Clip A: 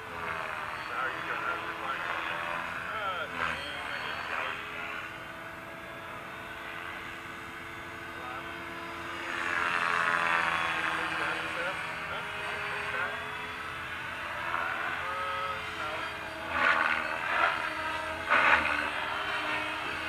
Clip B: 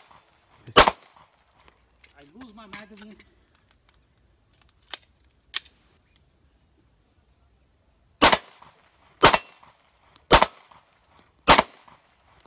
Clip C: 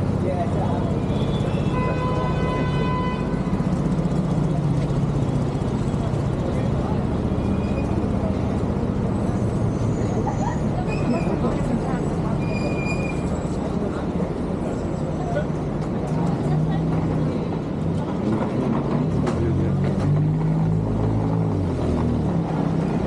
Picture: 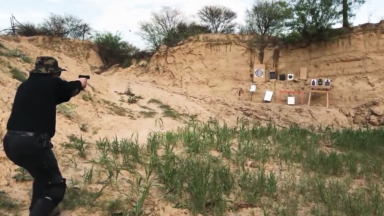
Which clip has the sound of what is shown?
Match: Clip B